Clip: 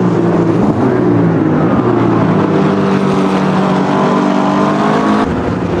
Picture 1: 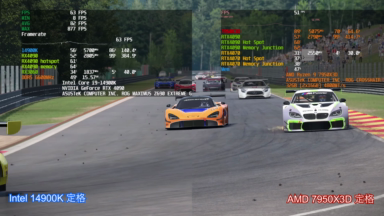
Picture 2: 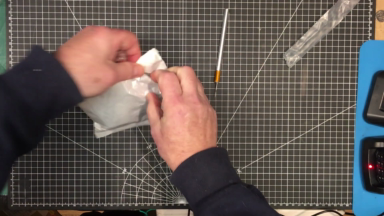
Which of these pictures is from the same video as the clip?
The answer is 1